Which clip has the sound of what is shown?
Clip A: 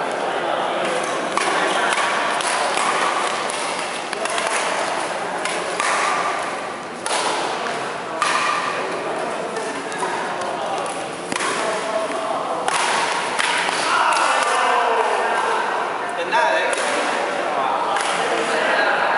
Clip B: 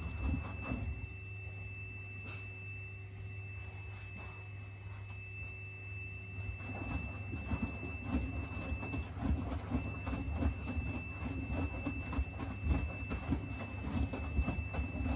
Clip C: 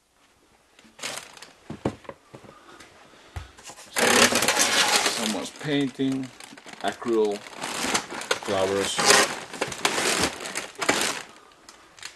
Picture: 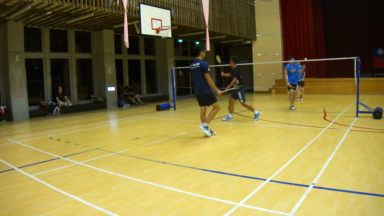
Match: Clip A